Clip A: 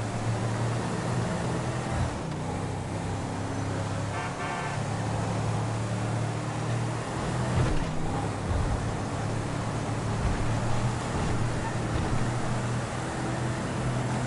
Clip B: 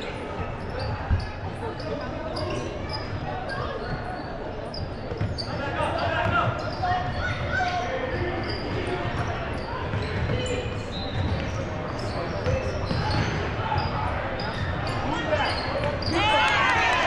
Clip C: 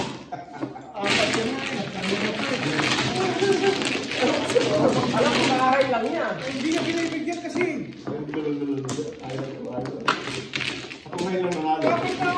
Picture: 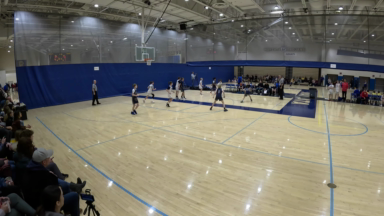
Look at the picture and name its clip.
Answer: B